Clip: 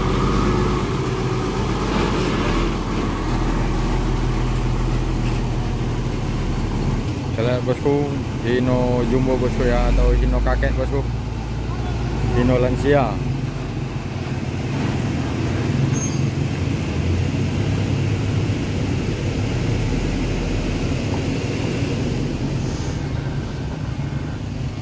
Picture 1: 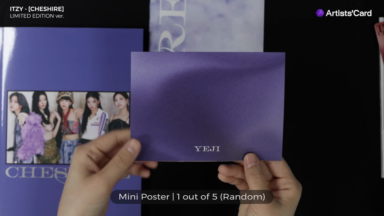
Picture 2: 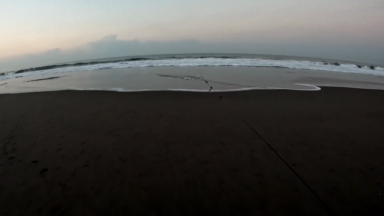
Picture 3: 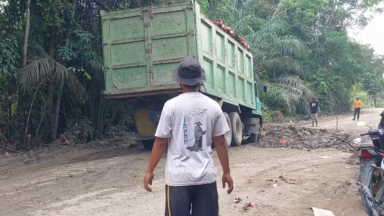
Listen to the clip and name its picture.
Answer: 3